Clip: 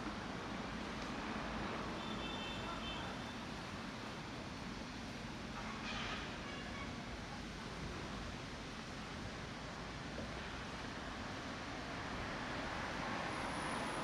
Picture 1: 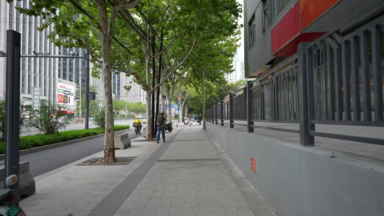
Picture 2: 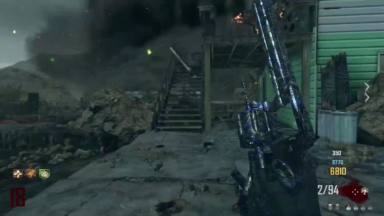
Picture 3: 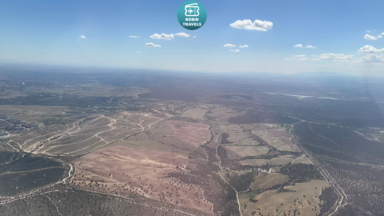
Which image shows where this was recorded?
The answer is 1